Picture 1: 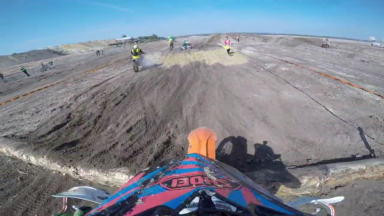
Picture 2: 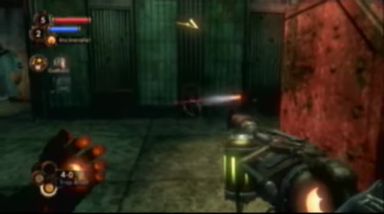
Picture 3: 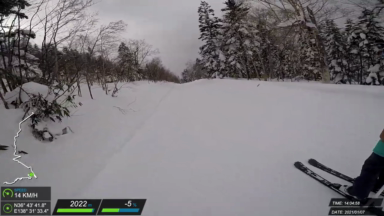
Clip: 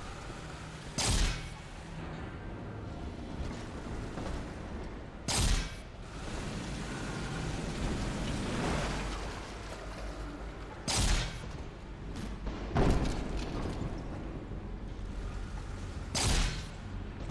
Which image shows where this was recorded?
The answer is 2